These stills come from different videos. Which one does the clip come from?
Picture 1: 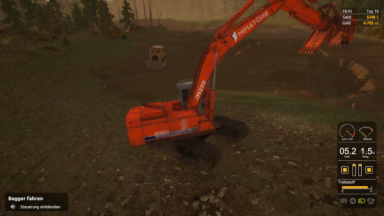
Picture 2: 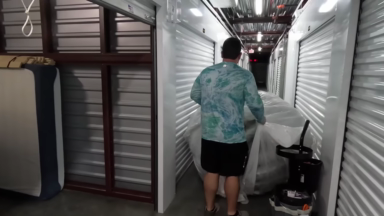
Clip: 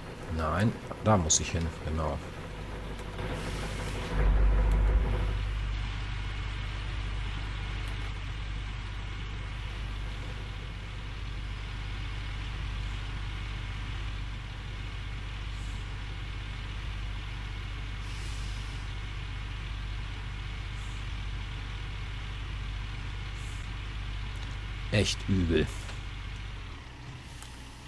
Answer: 1